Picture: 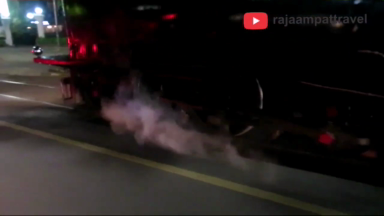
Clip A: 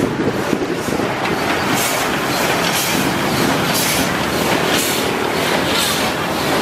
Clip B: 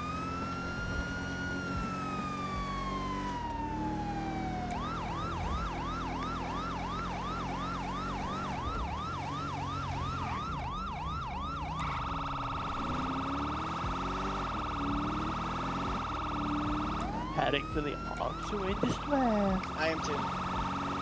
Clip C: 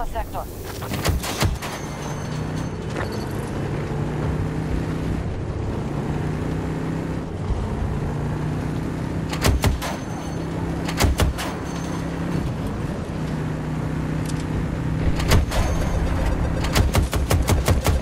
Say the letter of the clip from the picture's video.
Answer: A